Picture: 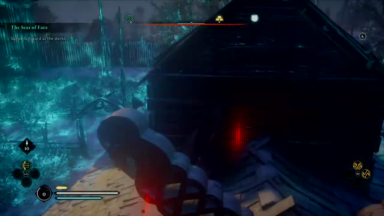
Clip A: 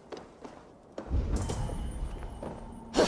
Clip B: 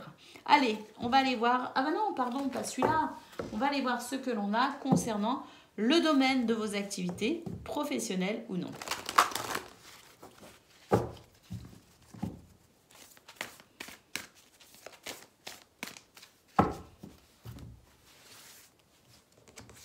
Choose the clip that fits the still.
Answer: A